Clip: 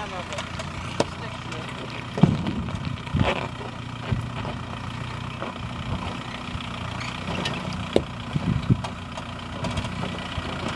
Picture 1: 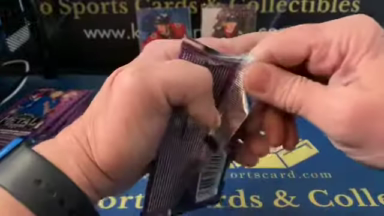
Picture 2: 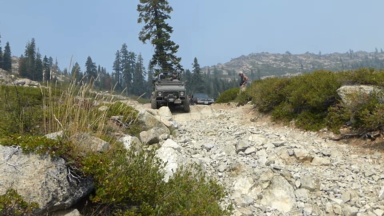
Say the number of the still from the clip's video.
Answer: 2